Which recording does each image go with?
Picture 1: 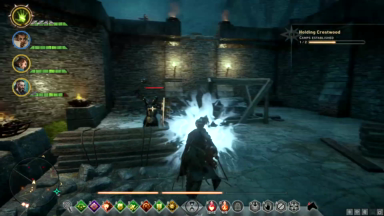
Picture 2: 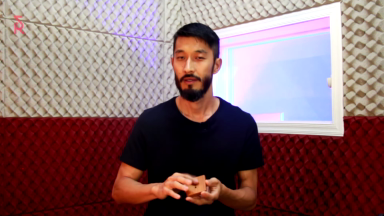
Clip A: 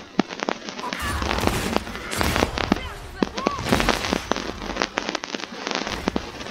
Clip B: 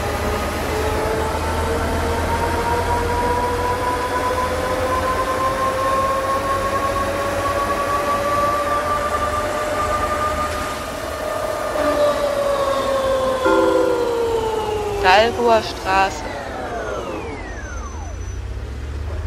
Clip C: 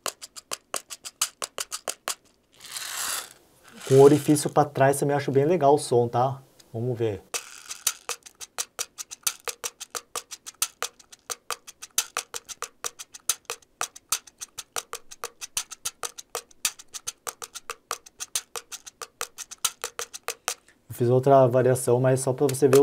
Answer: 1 A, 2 C